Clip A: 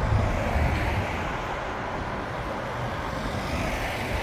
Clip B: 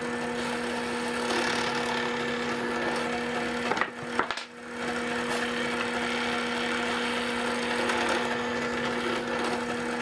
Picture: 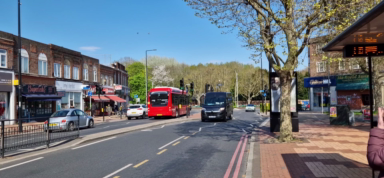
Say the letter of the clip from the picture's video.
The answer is A